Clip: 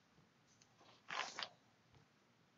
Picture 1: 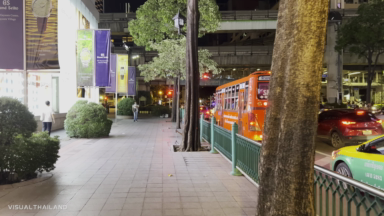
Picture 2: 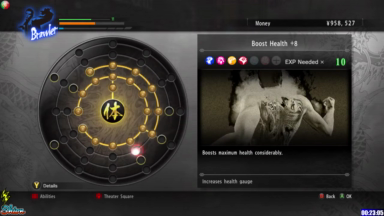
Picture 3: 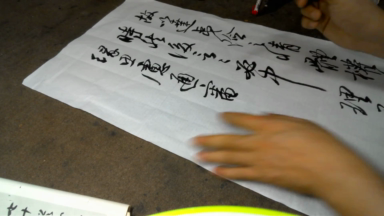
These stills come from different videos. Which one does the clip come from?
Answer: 3